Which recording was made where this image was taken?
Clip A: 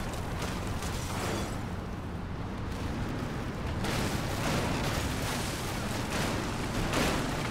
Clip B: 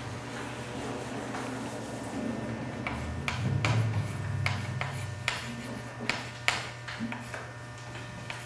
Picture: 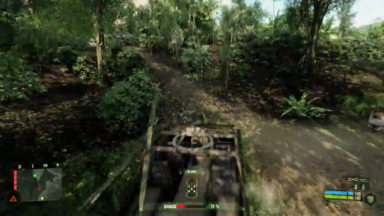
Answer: A